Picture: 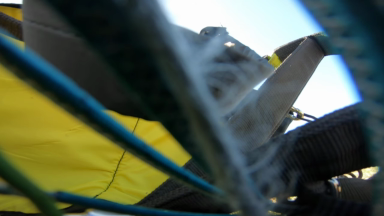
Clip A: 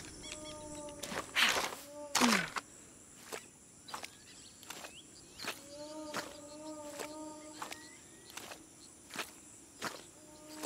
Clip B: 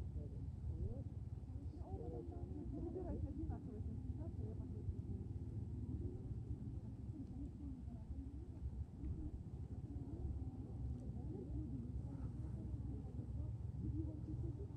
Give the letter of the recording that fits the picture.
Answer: B